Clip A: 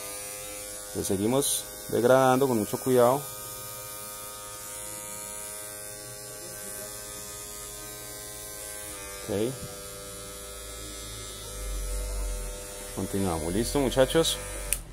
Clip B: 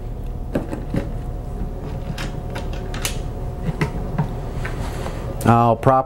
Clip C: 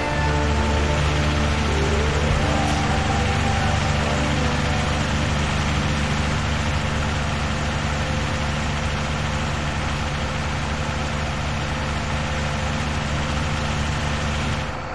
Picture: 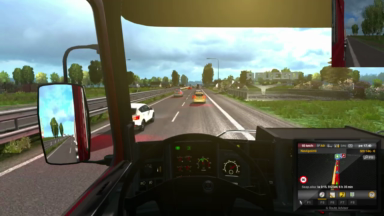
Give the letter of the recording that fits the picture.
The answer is C